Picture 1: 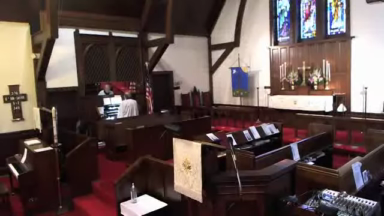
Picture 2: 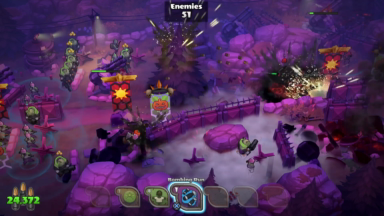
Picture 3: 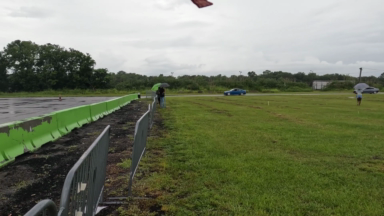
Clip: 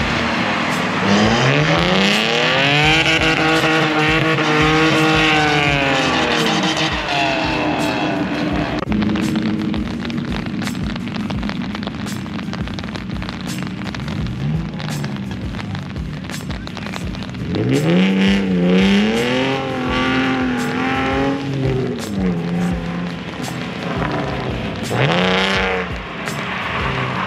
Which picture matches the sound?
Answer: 3